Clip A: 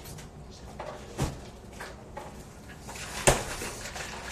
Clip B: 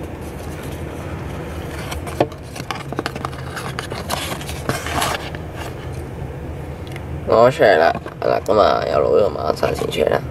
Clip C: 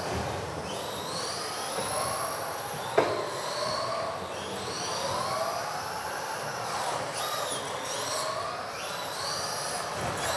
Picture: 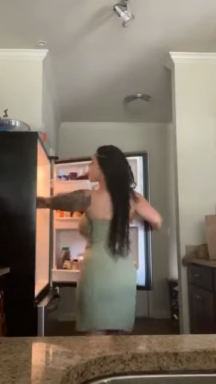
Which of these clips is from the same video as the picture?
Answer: A